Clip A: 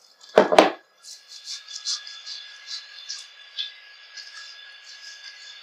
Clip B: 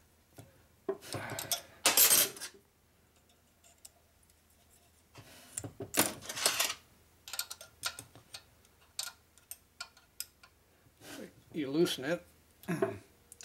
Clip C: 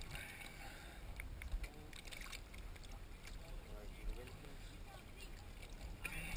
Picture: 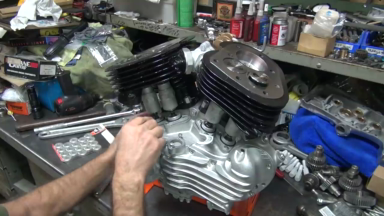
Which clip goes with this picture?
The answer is B